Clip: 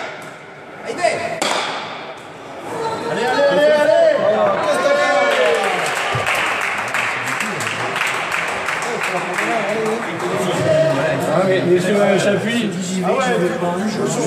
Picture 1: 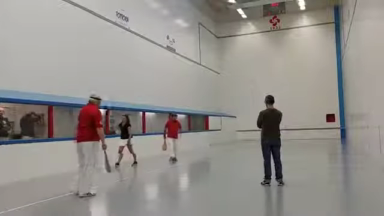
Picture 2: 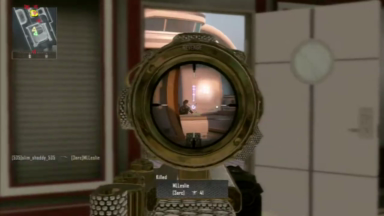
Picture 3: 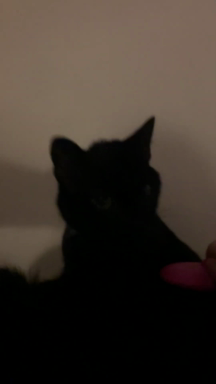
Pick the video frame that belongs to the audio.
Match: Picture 1